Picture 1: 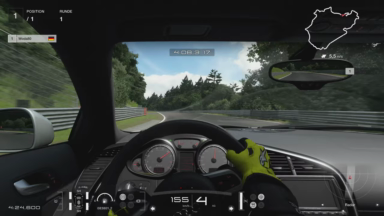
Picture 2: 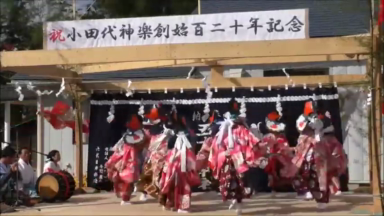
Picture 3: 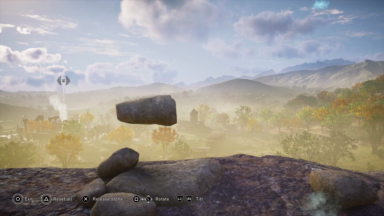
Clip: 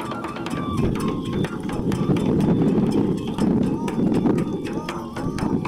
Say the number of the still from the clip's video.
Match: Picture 2